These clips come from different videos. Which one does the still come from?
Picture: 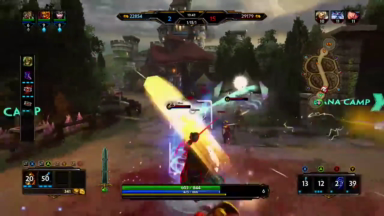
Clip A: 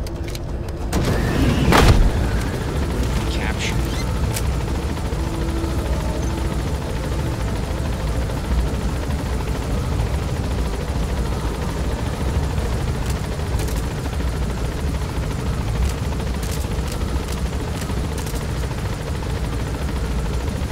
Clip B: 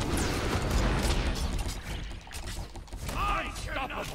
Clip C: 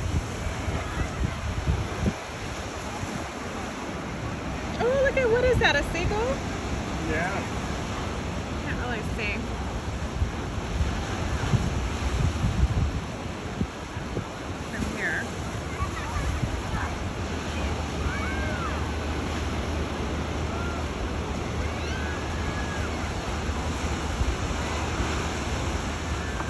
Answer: B